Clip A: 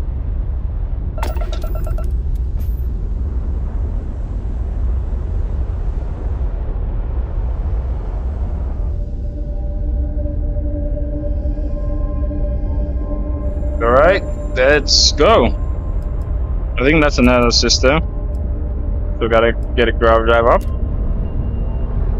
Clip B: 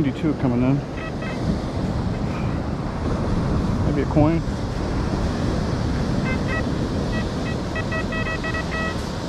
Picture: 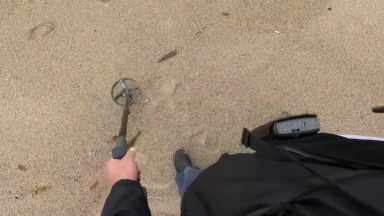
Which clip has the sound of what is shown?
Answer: B